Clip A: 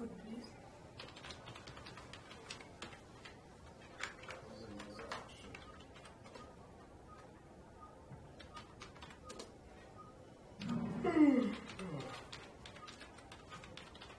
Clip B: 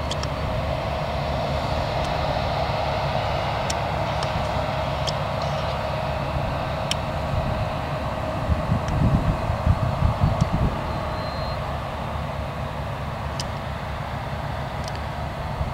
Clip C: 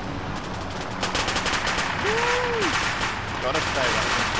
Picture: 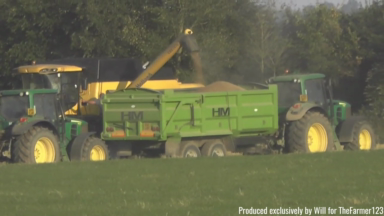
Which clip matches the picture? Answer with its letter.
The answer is B